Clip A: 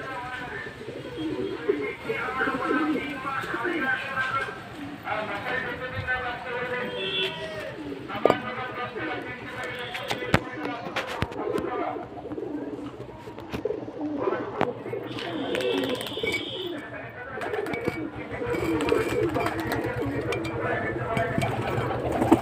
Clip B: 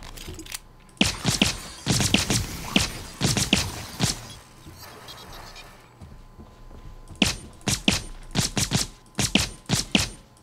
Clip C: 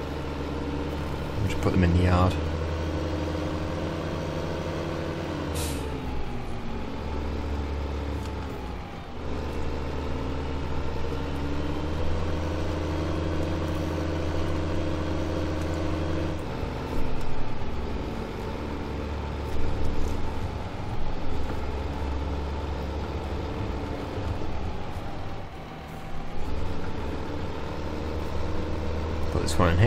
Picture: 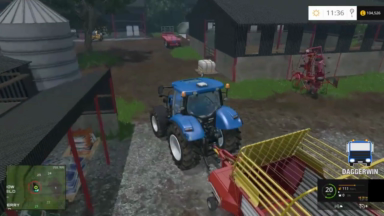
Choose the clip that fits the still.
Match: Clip C